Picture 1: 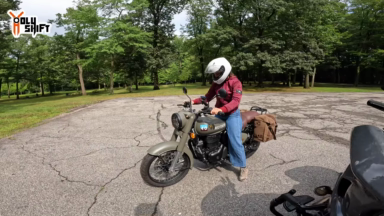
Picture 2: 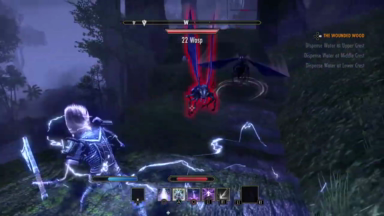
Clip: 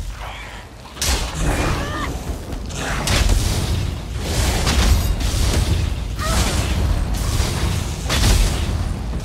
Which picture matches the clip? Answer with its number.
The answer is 2